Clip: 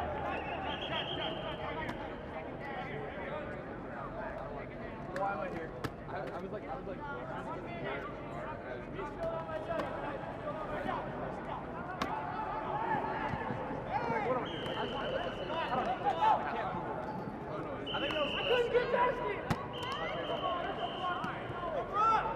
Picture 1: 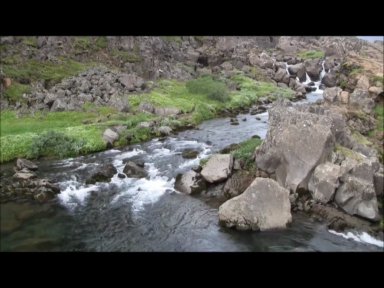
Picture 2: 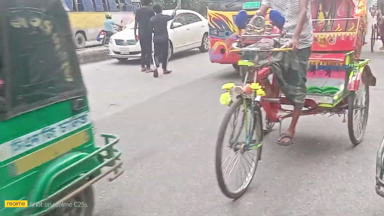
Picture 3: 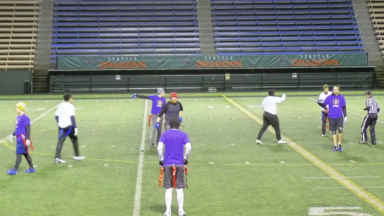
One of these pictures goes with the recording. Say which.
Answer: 3